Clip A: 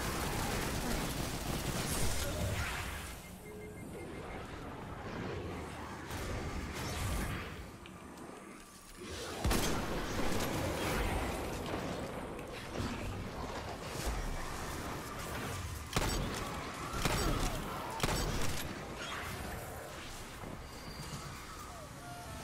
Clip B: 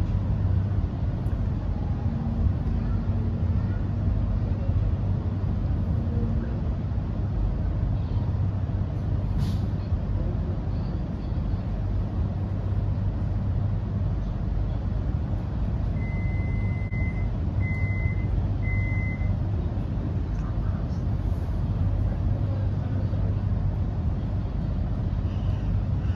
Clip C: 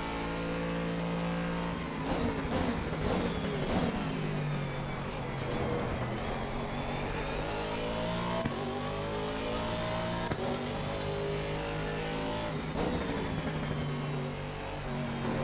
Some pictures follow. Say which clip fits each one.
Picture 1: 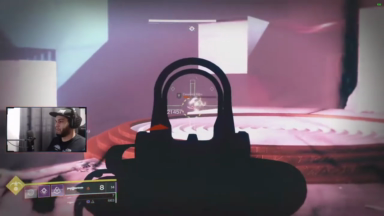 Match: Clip A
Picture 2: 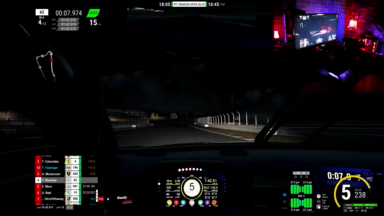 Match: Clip C